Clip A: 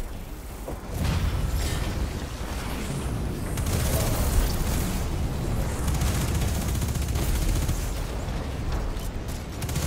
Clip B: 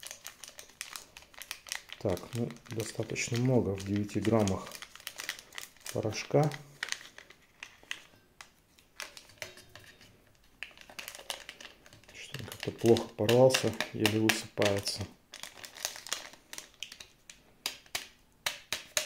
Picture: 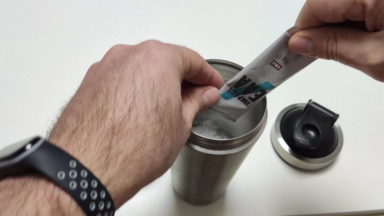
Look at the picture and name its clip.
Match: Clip B